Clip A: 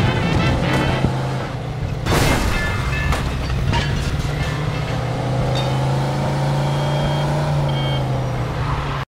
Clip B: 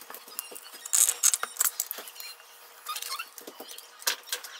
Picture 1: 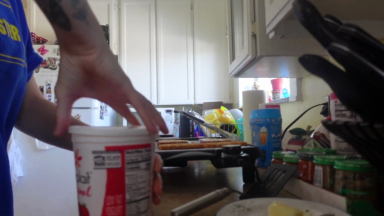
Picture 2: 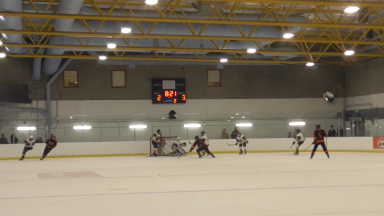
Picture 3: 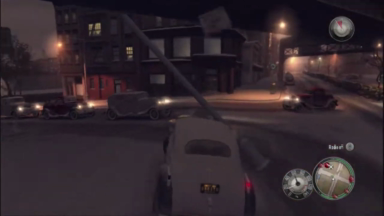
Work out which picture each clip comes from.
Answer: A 3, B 1